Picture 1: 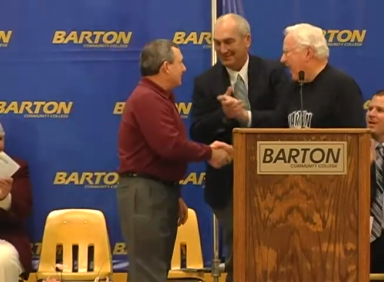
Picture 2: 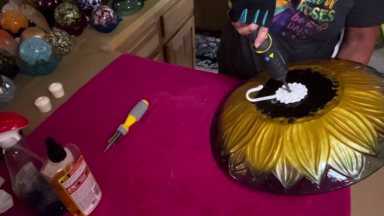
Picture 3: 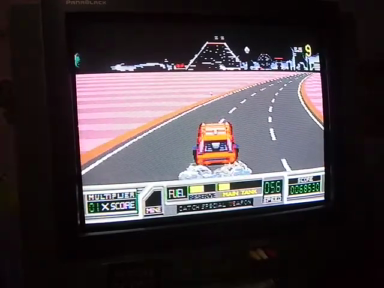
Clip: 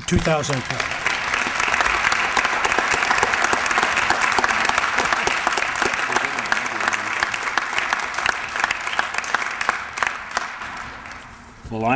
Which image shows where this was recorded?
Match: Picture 1